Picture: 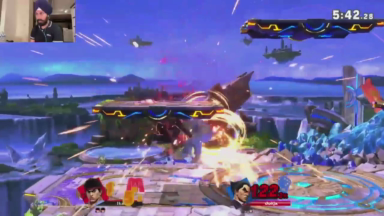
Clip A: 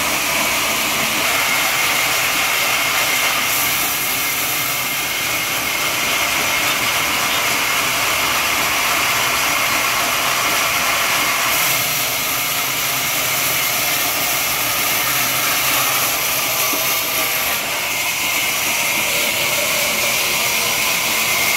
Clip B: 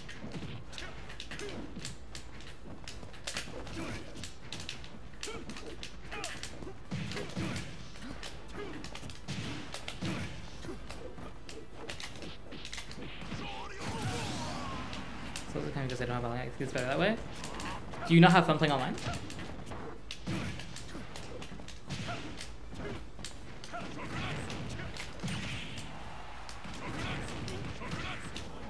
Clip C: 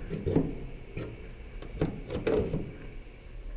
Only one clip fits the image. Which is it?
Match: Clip B